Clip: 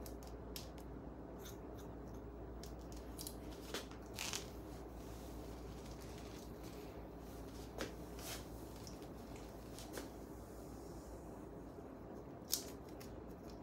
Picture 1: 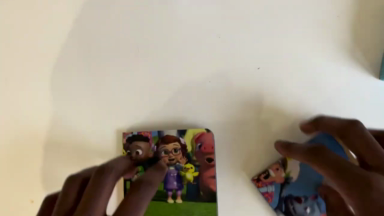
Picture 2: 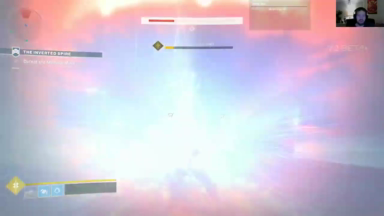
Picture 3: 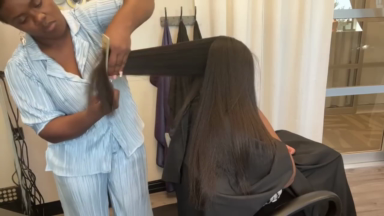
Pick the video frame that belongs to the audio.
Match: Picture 3